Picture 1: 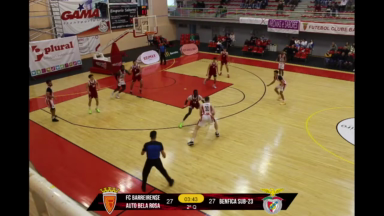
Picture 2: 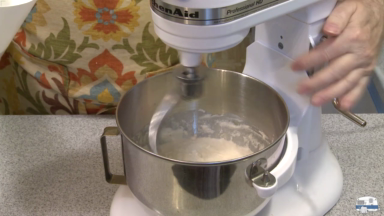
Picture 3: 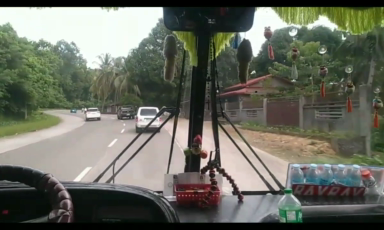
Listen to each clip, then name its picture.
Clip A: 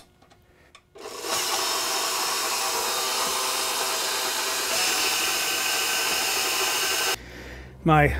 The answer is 2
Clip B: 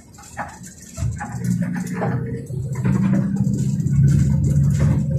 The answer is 3